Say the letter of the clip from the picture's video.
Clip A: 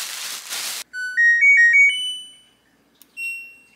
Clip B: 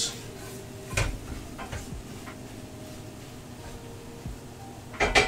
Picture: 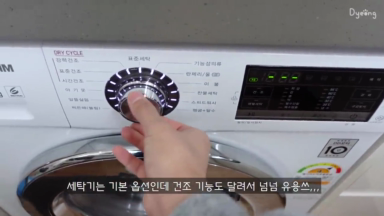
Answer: A